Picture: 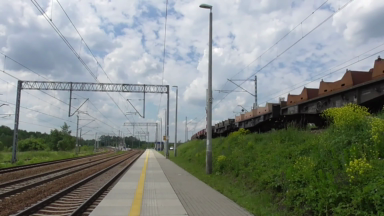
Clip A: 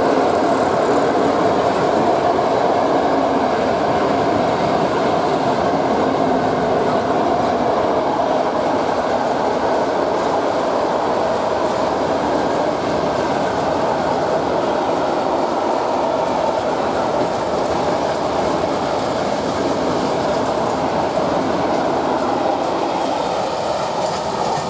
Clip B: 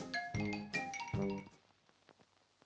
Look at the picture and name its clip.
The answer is A